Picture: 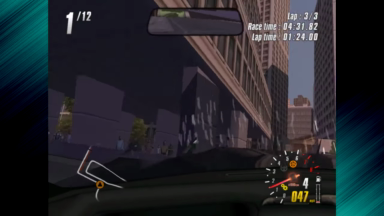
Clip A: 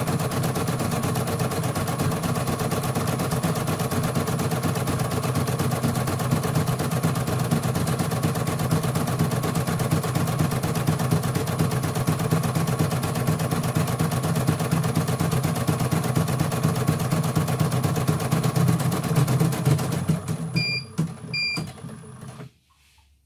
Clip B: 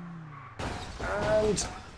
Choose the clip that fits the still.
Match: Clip B